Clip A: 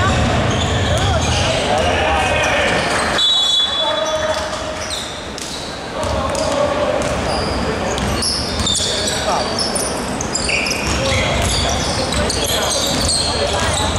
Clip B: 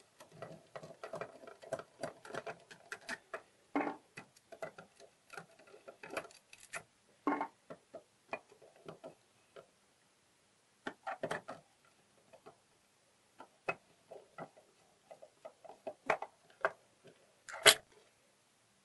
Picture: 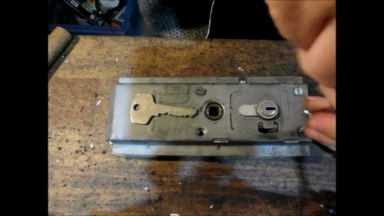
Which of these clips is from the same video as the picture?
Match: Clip B